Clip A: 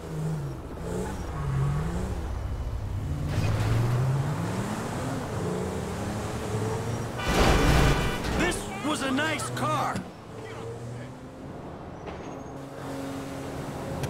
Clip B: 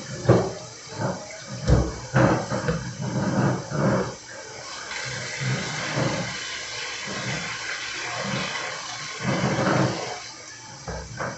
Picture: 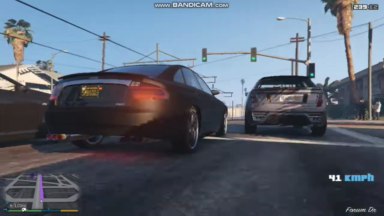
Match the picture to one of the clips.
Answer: A